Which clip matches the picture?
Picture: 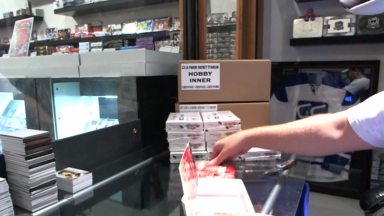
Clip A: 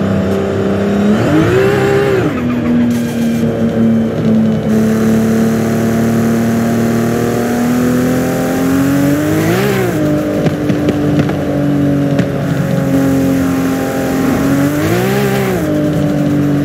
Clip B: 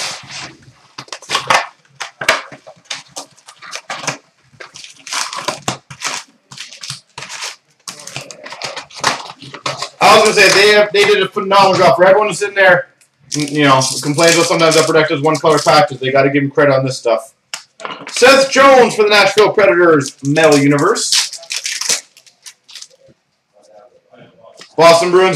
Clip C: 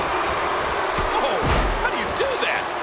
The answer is B